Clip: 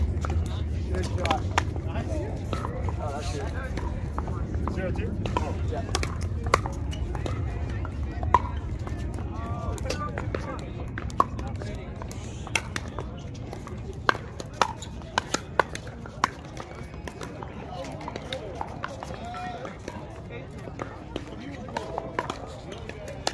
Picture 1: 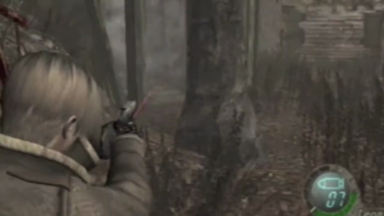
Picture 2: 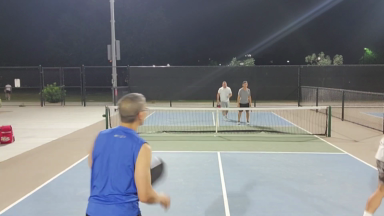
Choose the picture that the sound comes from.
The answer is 2